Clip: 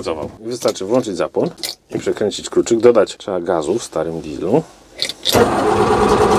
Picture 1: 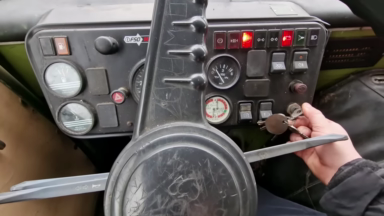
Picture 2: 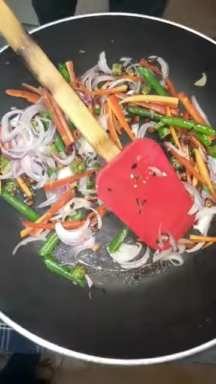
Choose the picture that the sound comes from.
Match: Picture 1